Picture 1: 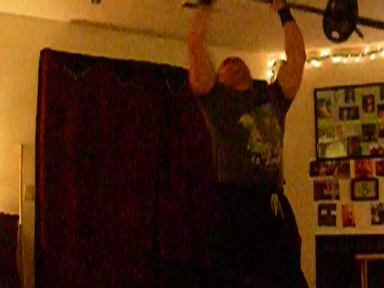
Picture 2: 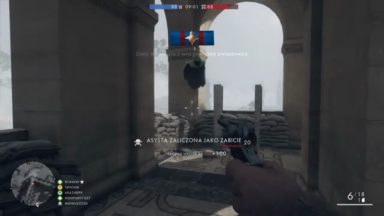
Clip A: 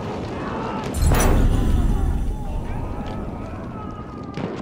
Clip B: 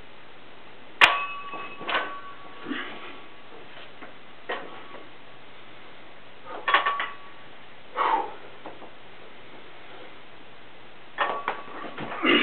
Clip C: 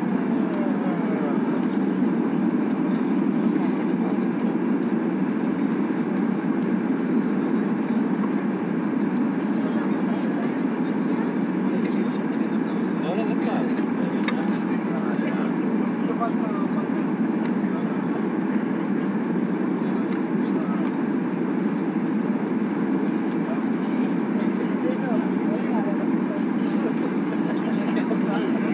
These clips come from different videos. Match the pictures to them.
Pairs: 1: B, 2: A